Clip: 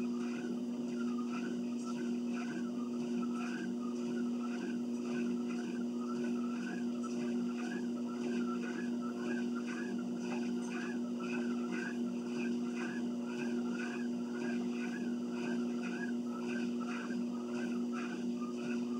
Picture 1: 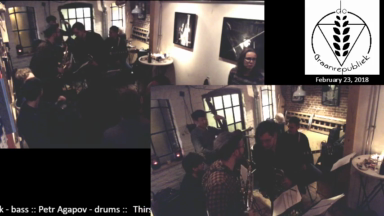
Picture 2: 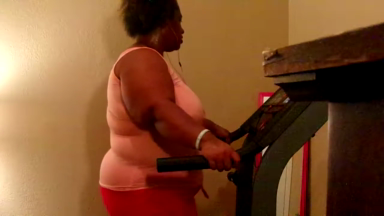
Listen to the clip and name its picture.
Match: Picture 2